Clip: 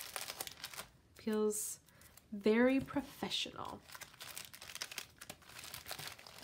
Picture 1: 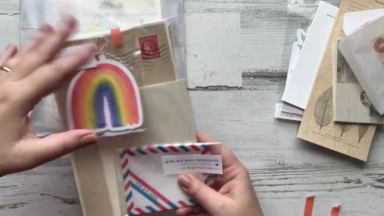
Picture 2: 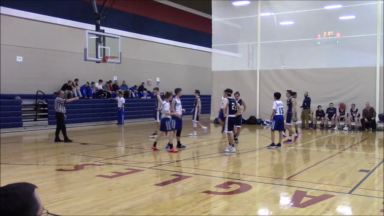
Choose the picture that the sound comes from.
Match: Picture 1